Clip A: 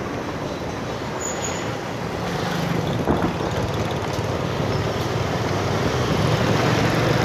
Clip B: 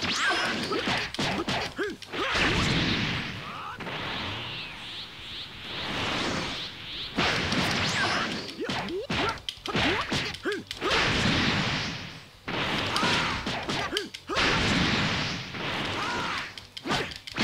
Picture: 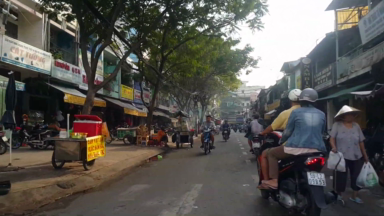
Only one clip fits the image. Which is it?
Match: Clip A